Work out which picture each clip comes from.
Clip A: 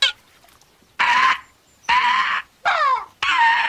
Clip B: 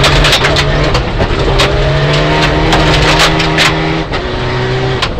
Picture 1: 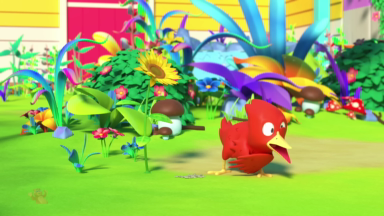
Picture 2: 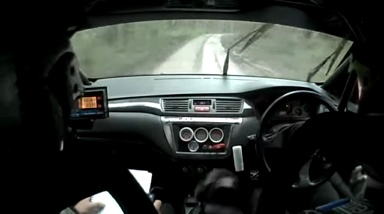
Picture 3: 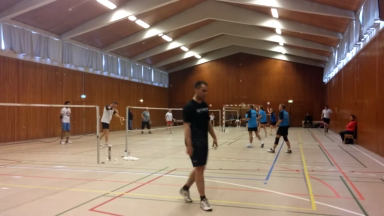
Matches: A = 1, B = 2